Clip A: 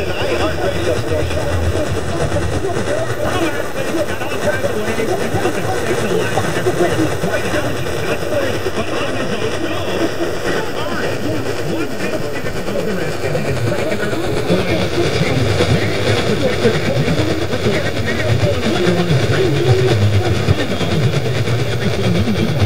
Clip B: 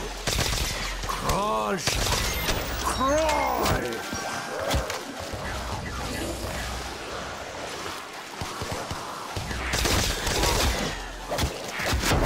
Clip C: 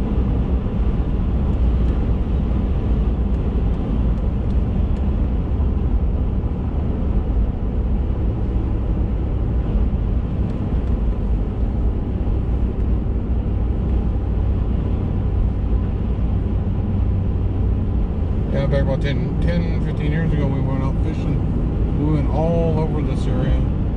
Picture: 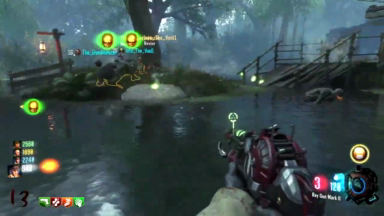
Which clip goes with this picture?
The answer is B